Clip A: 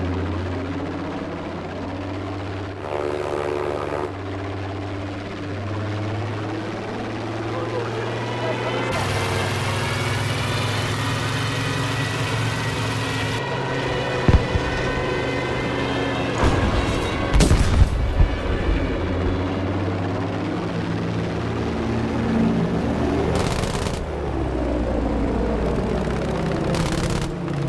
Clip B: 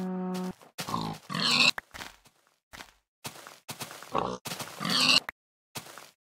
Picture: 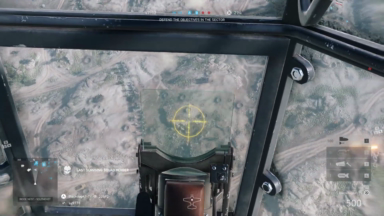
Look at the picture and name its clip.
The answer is A